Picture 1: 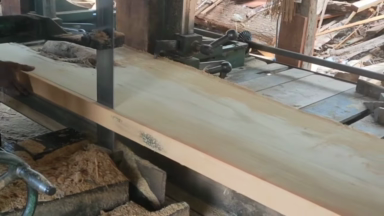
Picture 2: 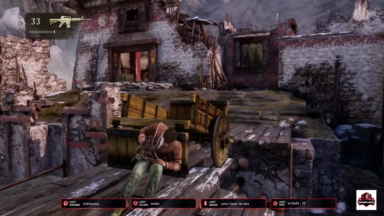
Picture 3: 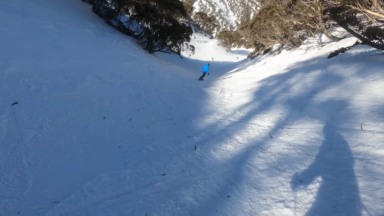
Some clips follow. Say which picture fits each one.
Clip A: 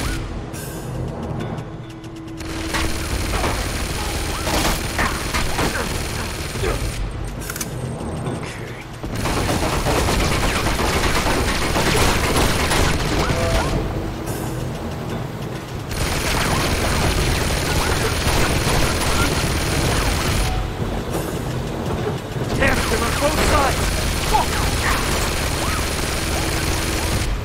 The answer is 2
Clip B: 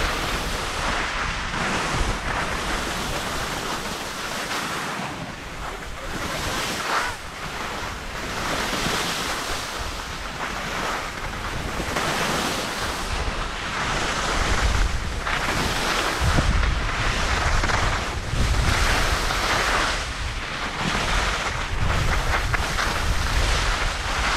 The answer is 3